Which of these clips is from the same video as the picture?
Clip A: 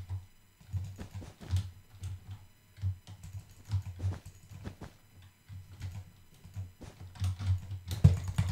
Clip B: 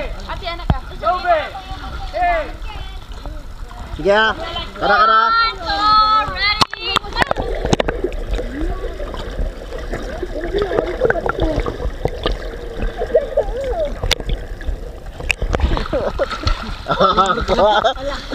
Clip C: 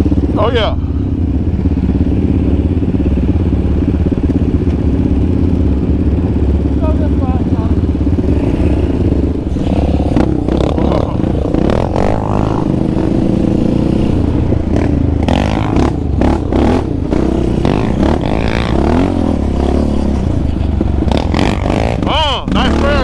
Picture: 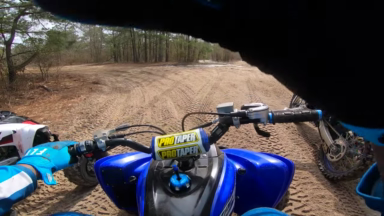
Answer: C